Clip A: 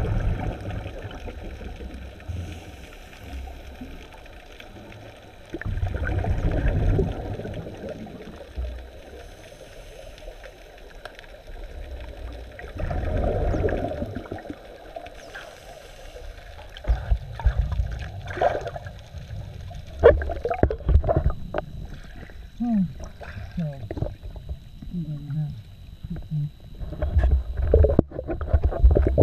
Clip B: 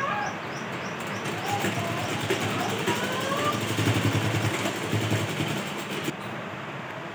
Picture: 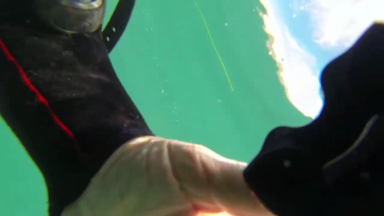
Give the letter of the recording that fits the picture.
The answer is A